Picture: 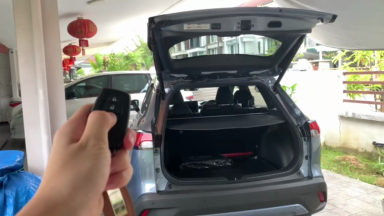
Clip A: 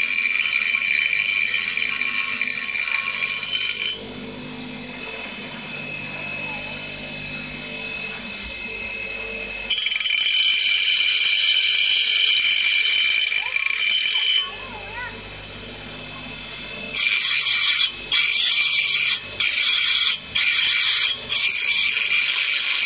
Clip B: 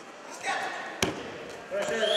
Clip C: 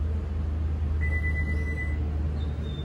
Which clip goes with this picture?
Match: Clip C